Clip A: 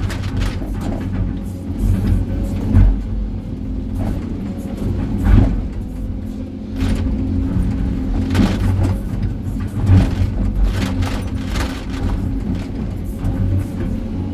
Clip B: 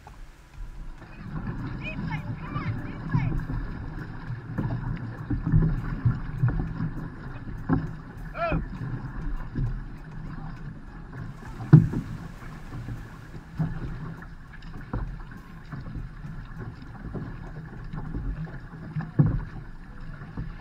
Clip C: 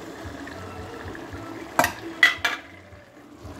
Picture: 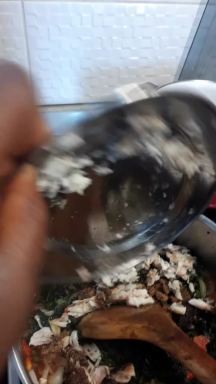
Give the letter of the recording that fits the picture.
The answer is C